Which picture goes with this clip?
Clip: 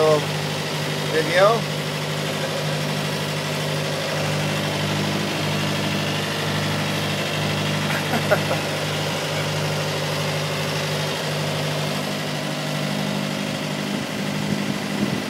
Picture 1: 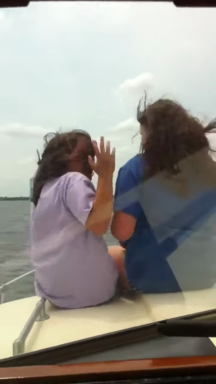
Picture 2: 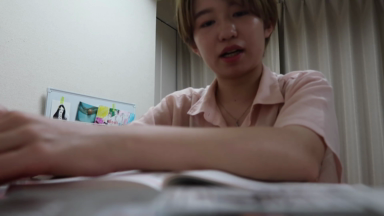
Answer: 1